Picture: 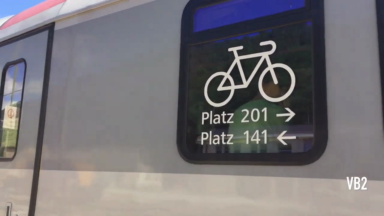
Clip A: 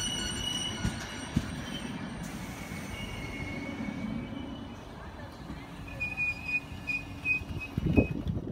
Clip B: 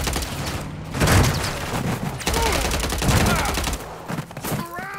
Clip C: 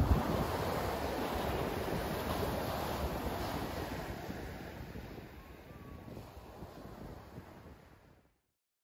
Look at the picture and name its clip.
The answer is A